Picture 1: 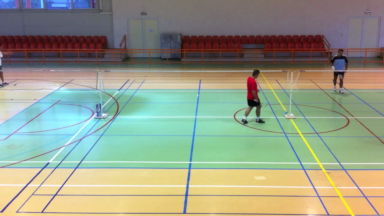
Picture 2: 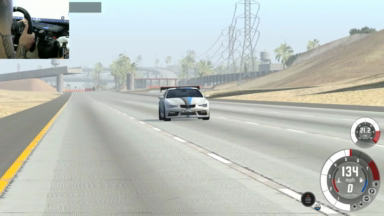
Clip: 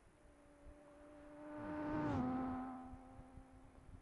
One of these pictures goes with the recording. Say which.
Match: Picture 2